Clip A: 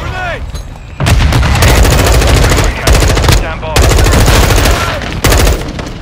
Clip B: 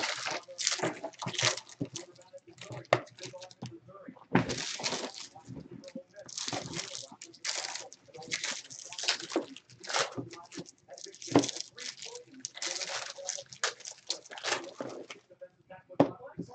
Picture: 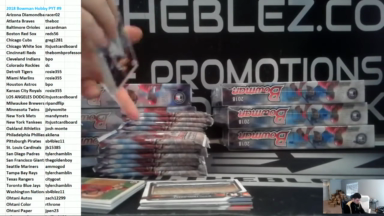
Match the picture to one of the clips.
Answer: B